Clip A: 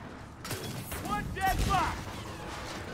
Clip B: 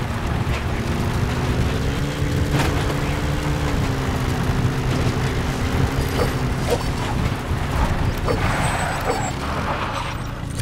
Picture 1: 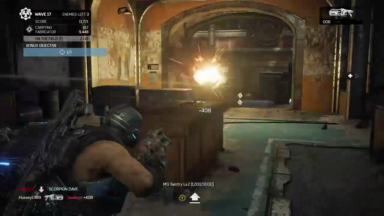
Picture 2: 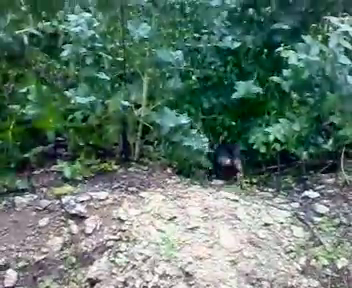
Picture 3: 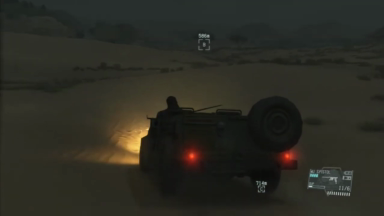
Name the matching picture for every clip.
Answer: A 1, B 3